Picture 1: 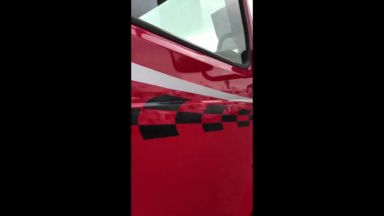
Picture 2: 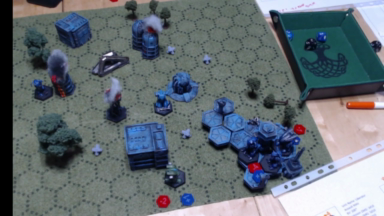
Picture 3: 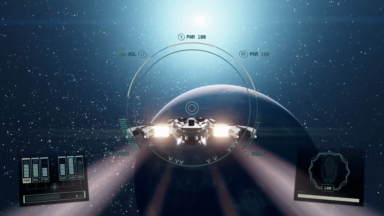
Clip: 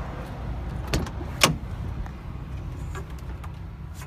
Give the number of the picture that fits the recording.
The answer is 1